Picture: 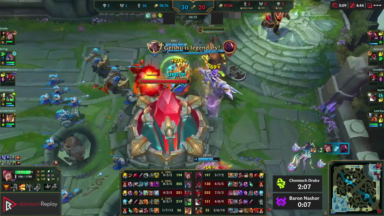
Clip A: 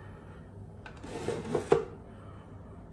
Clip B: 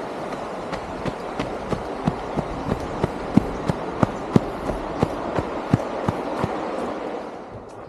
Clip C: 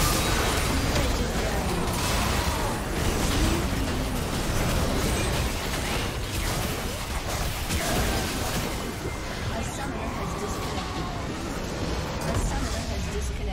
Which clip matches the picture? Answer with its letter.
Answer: C